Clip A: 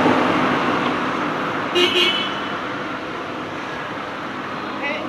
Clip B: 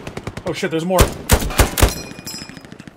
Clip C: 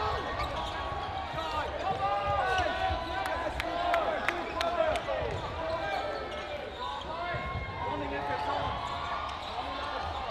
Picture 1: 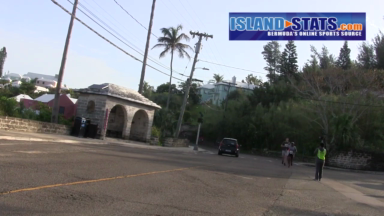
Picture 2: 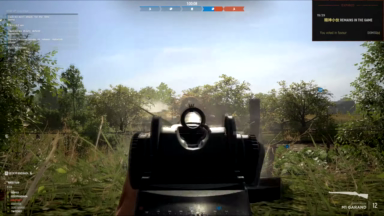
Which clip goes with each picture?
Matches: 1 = A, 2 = B